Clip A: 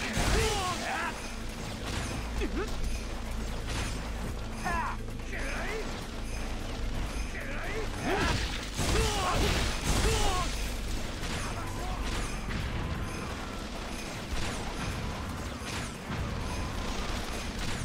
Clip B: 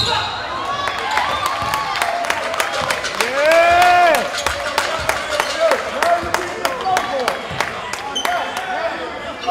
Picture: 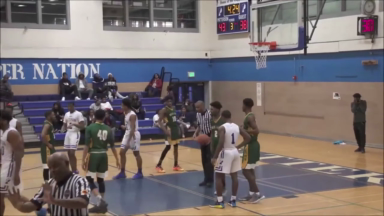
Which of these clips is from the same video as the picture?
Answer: B